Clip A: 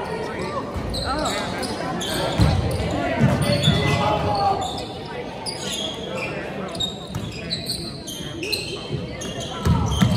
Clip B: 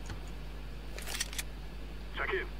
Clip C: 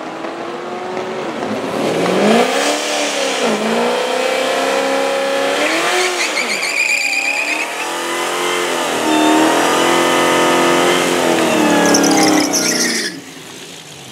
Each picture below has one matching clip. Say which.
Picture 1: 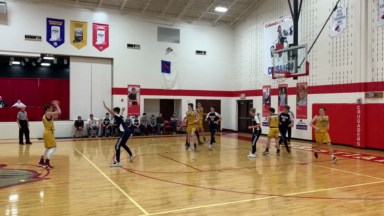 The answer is A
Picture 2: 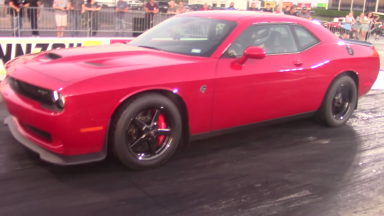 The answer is C